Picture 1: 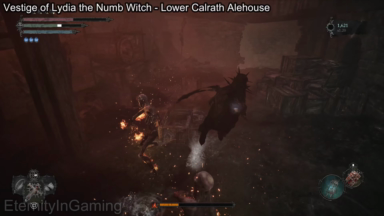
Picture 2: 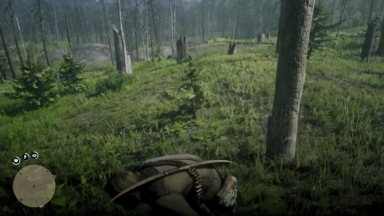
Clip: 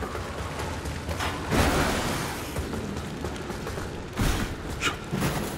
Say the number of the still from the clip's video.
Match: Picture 1